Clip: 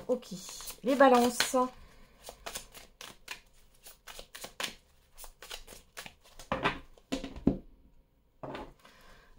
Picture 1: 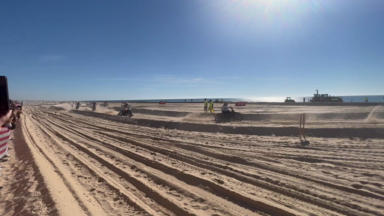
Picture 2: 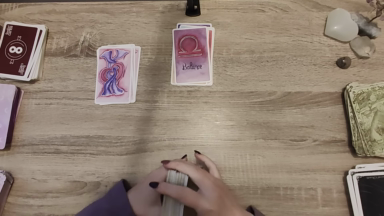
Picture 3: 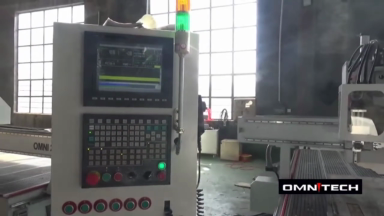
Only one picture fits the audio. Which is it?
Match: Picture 2